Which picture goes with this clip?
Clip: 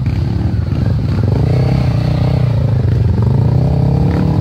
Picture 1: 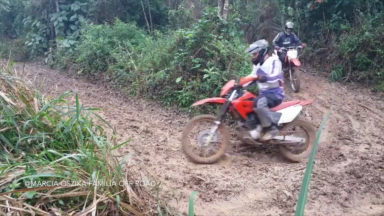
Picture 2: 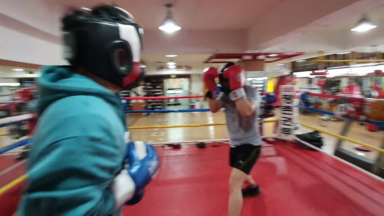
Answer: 1